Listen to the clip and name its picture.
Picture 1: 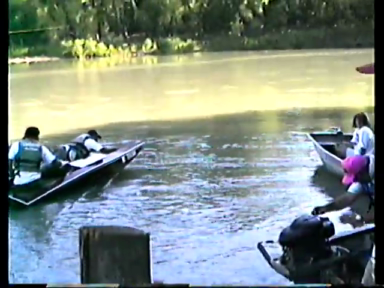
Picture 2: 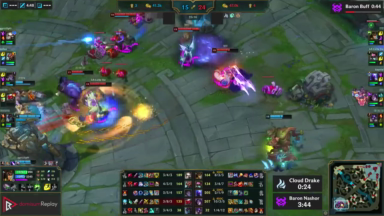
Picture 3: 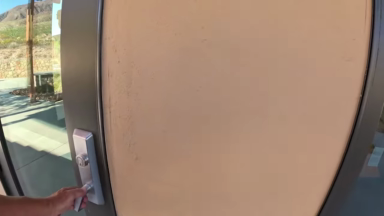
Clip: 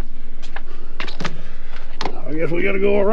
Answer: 3